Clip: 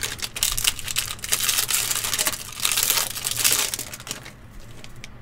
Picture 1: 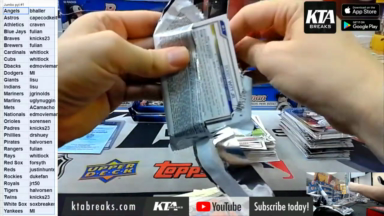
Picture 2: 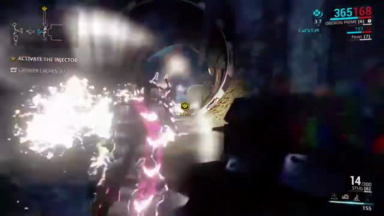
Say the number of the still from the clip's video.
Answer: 1